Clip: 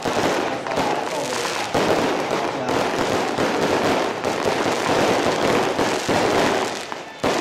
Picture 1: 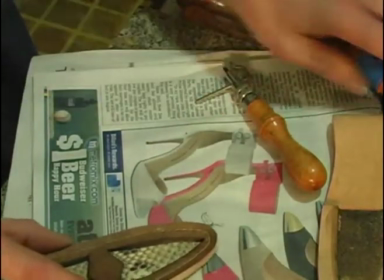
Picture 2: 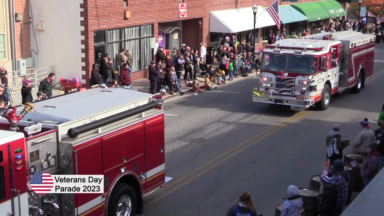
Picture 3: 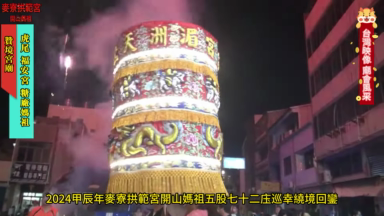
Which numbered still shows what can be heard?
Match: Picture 3